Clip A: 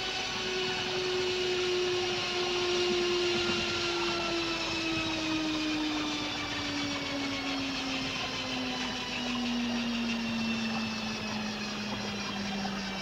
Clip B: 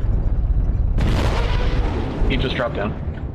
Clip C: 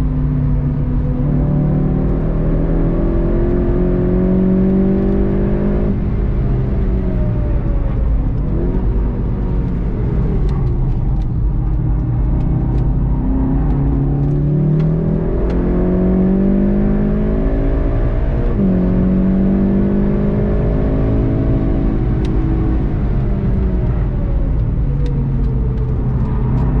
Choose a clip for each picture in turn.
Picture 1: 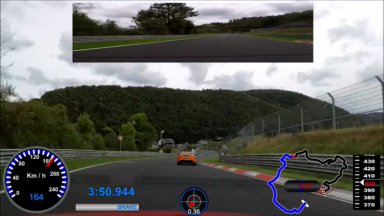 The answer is C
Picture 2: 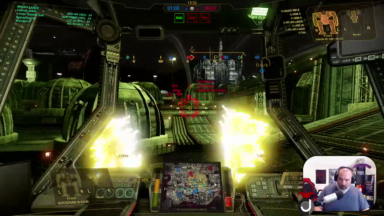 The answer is B